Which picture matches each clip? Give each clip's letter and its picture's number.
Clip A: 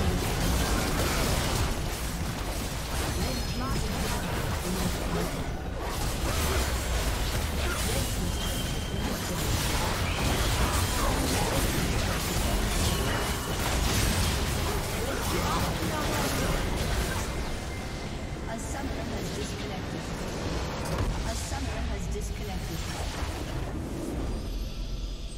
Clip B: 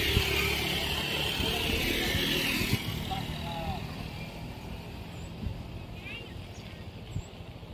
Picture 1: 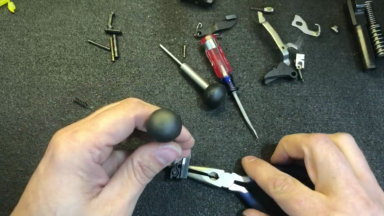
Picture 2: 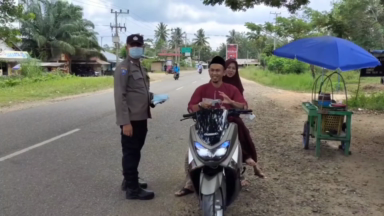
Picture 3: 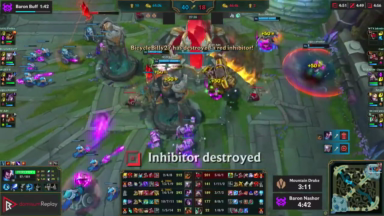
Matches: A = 3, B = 2